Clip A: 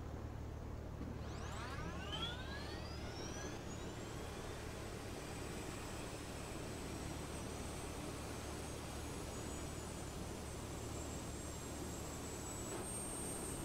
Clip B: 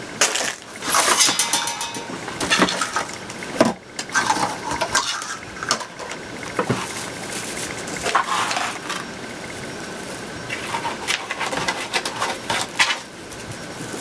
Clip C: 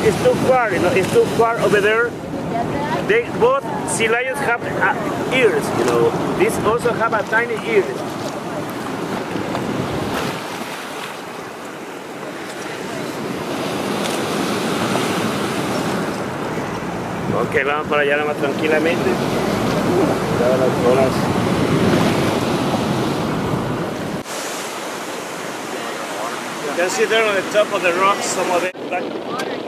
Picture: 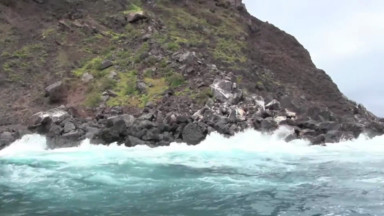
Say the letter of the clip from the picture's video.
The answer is C